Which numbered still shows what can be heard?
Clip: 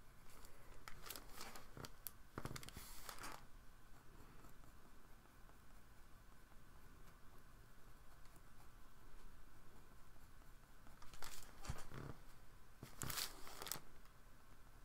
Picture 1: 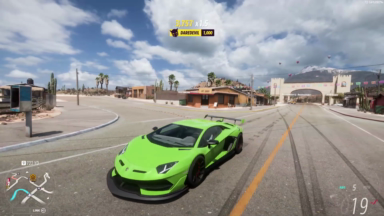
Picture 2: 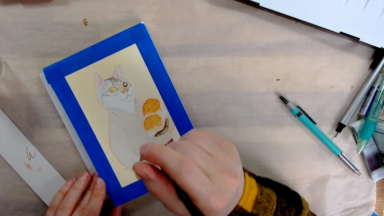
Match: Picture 2